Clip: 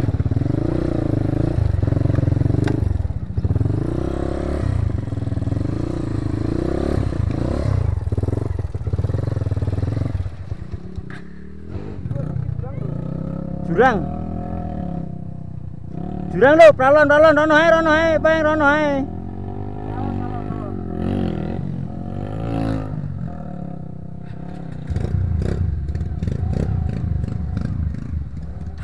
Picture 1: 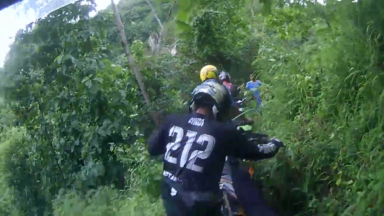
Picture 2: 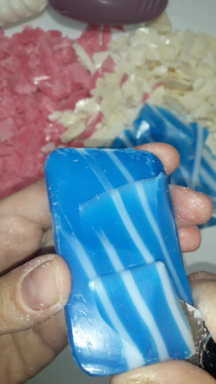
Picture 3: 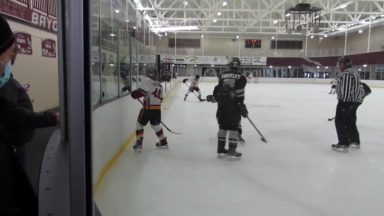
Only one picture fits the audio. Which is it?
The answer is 1